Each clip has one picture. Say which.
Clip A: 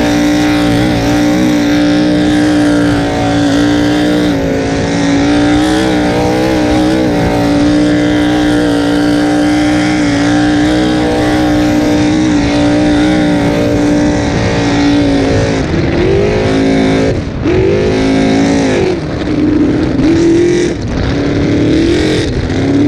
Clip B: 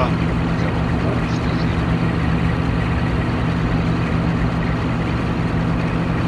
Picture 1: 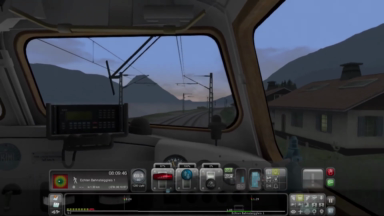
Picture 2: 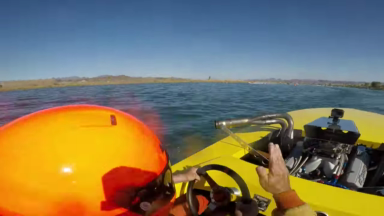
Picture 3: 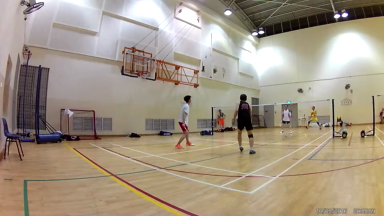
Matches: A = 2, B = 1